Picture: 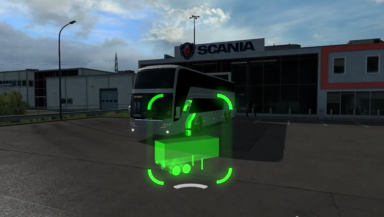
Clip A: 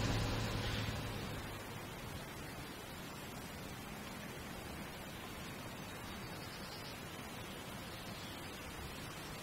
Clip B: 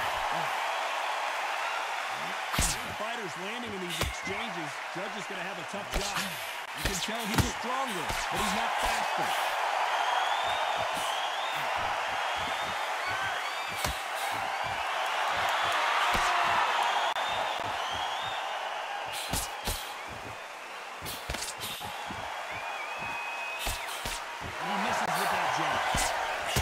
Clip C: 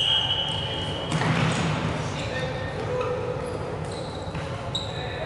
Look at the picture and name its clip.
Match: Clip A